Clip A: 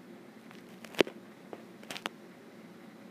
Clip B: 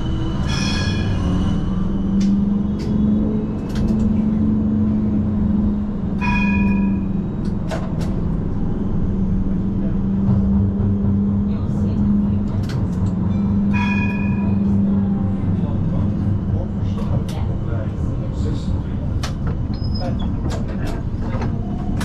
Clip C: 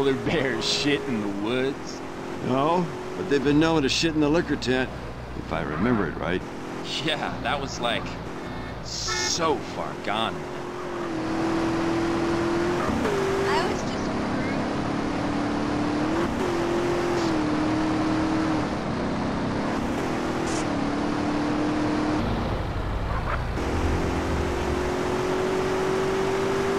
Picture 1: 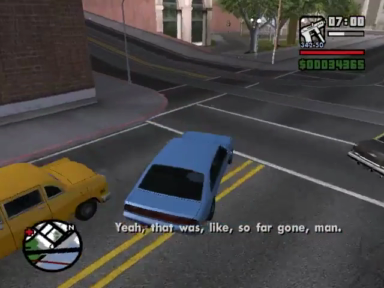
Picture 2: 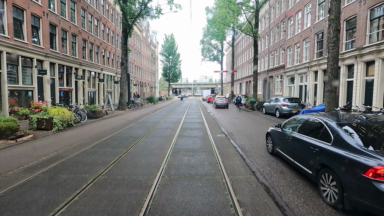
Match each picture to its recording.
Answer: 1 C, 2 B